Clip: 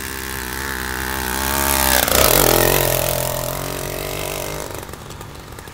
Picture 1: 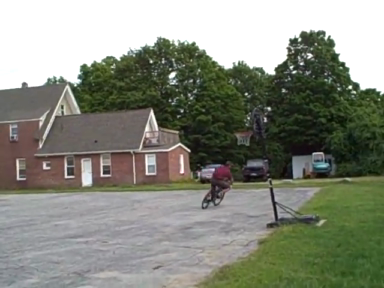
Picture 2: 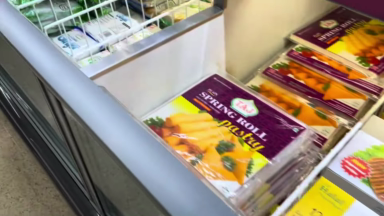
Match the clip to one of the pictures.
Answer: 1